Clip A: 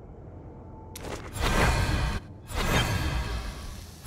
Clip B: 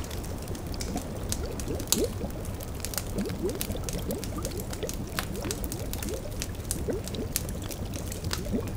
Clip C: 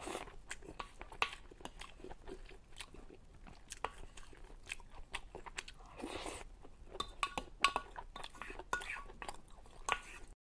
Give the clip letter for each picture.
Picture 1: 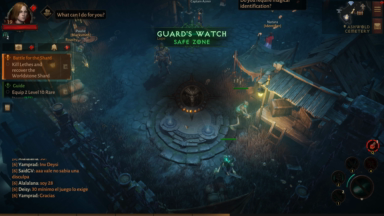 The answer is A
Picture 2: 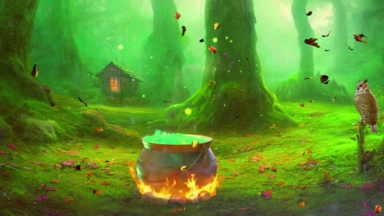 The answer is B